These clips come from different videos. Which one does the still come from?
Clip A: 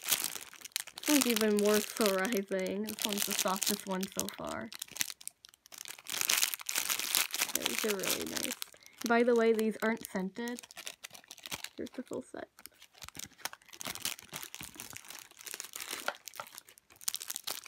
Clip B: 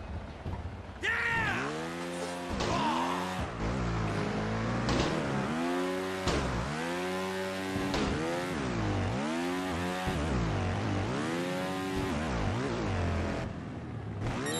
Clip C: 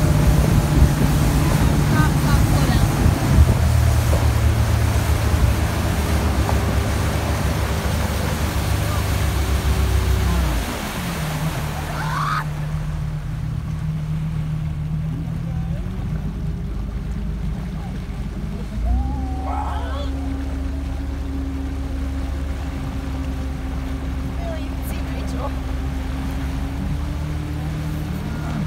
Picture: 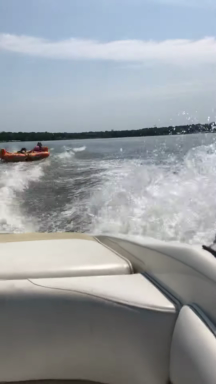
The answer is C